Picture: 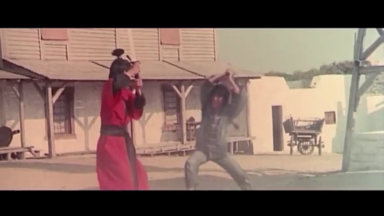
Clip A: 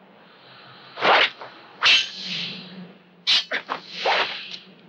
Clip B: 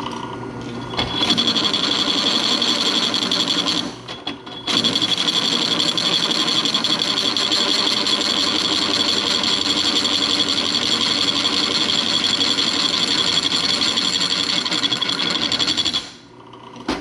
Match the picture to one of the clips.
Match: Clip A